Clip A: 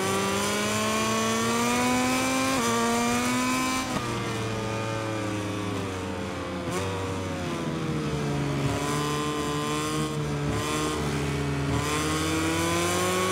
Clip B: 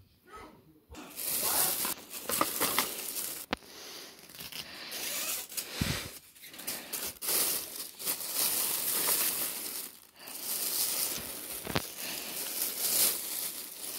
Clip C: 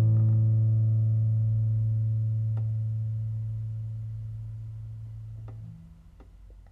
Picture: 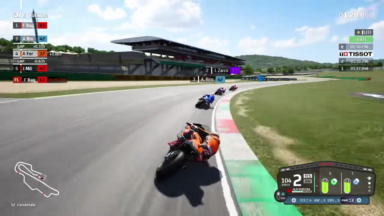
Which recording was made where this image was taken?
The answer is A